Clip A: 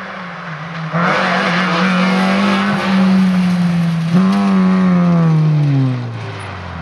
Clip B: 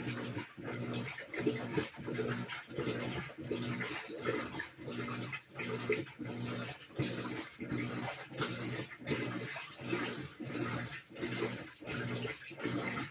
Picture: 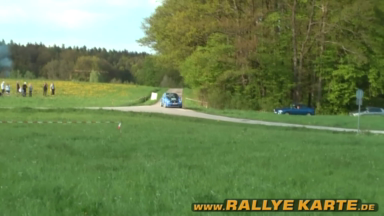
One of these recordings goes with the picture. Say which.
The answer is A